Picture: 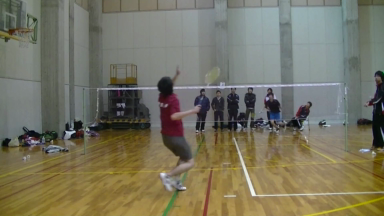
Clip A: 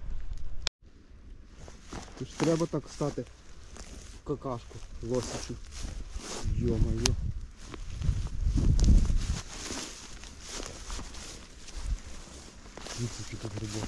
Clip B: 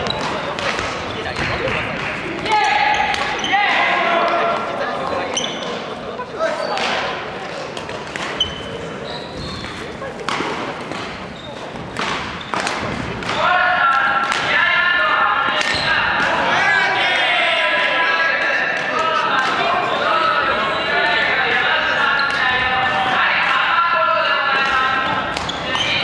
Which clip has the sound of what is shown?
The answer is B